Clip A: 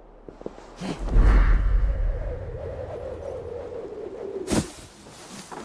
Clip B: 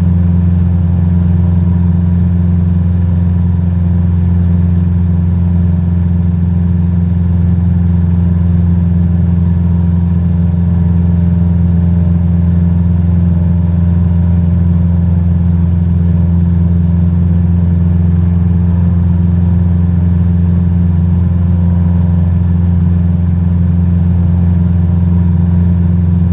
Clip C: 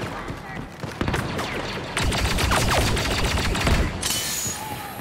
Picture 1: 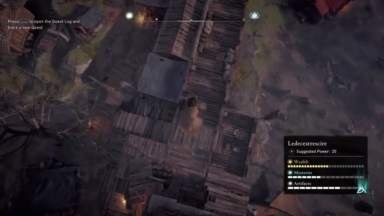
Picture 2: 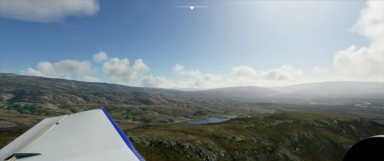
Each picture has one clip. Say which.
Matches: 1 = A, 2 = B